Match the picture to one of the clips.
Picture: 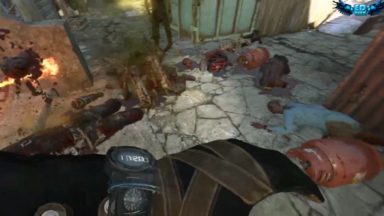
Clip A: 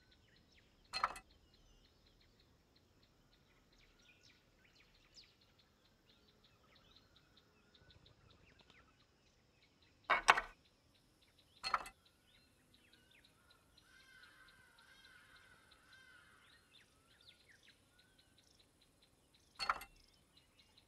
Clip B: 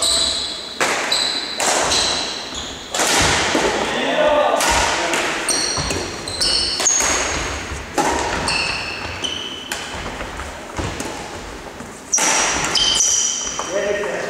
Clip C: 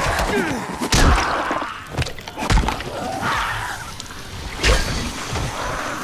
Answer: C